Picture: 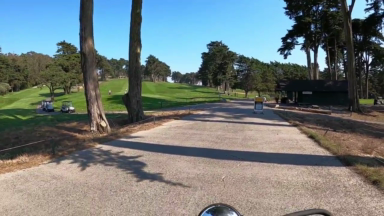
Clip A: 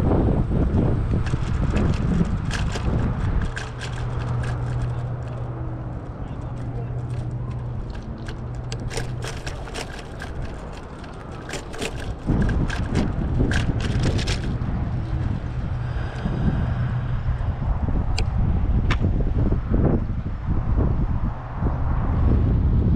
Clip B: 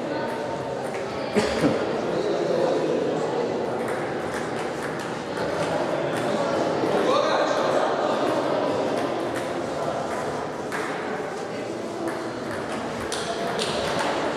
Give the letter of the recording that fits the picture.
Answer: A